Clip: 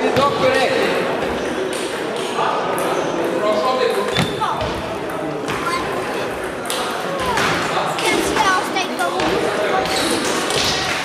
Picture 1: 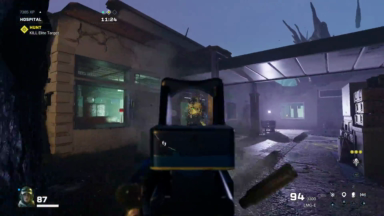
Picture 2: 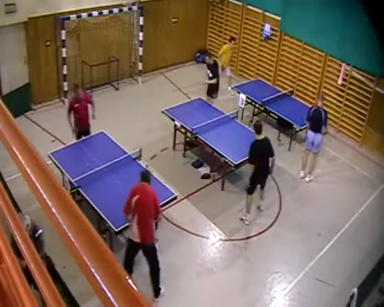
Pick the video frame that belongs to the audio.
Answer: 2